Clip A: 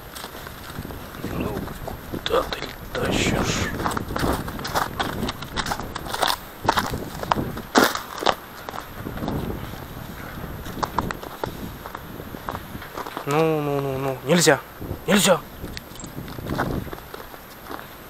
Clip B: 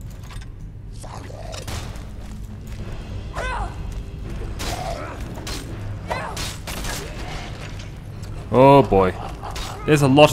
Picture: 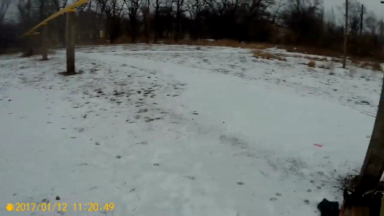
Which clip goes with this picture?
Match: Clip A